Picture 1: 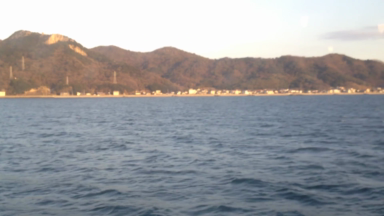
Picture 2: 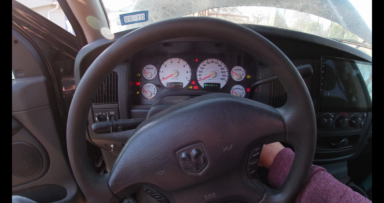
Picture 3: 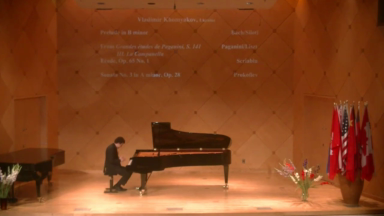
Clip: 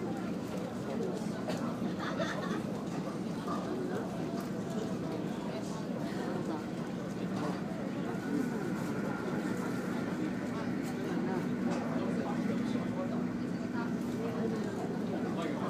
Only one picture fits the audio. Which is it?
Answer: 1